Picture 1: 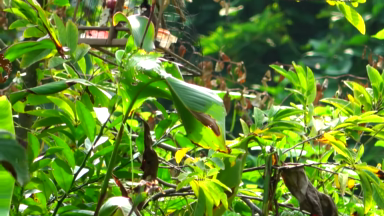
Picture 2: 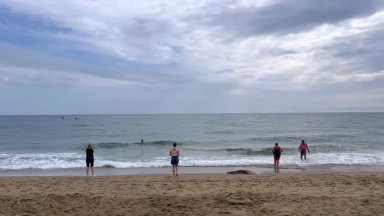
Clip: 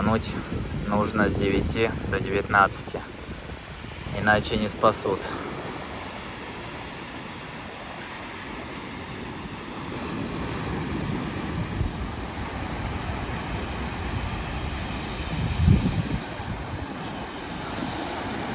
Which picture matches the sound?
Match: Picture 2